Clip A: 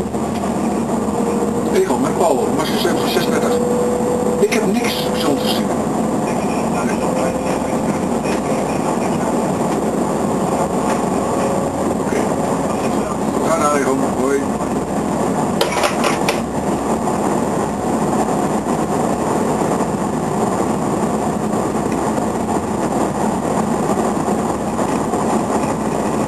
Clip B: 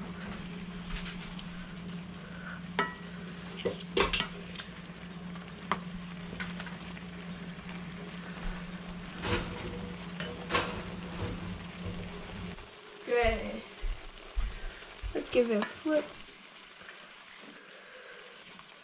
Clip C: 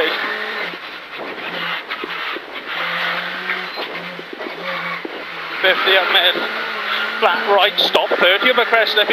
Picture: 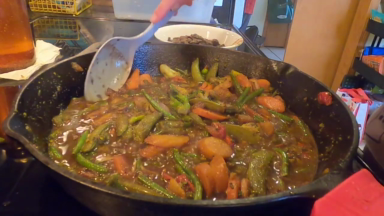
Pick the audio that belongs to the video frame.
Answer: B